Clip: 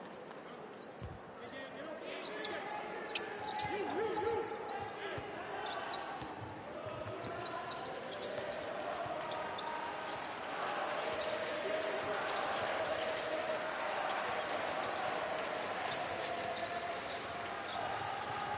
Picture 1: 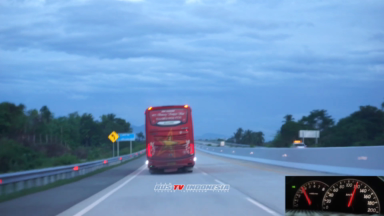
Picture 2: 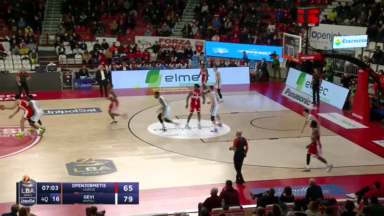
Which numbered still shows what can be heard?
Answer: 2